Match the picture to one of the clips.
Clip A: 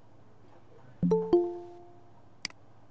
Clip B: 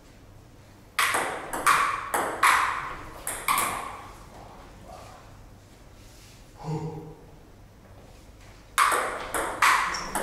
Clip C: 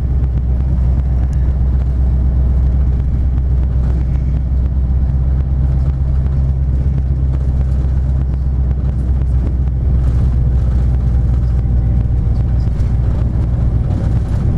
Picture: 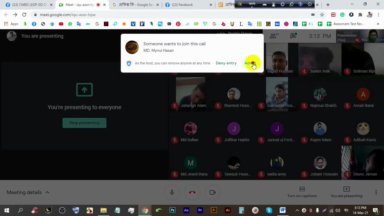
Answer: A